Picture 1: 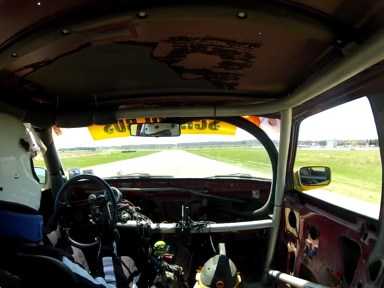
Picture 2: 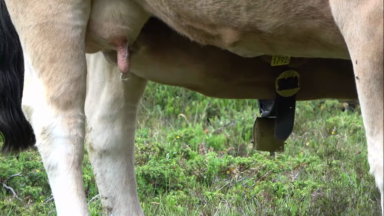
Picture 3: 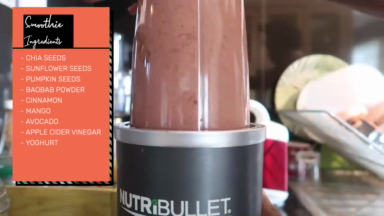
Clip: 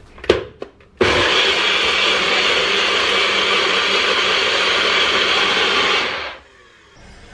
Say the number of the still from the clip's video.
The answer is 3